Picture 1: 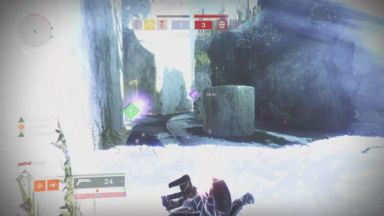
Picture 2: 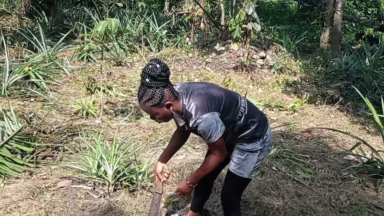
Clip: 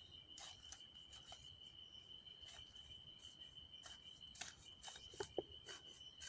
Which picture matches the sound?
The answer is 2